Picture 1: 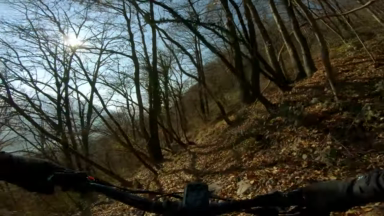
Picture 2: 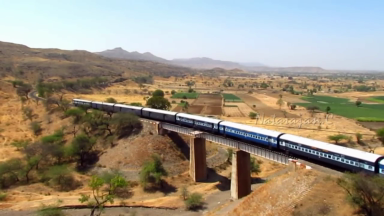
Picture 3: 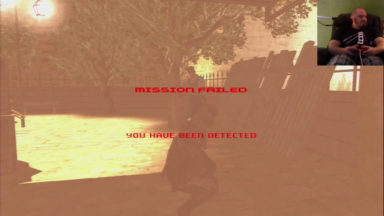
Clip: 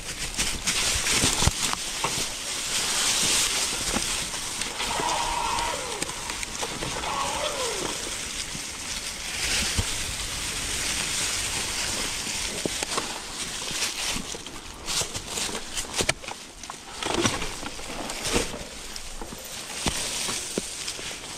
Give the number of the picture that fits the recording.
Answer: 1